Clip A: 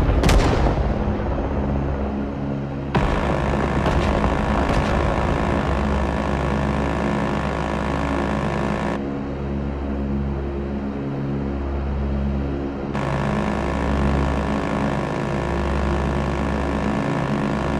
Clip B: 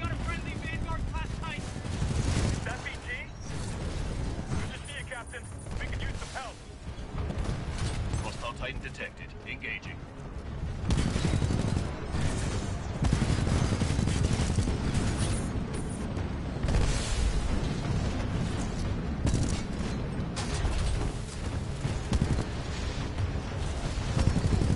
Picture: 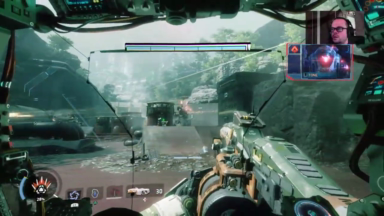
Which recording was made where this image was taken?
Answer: B